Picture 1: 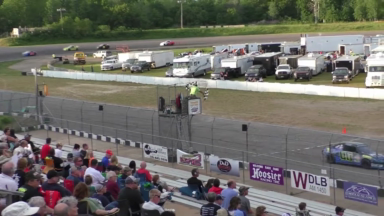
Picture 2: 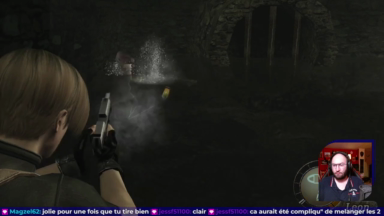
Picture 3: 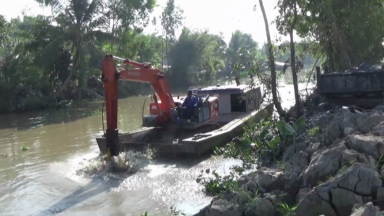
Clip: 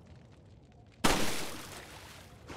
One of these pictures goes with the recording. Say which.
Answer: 2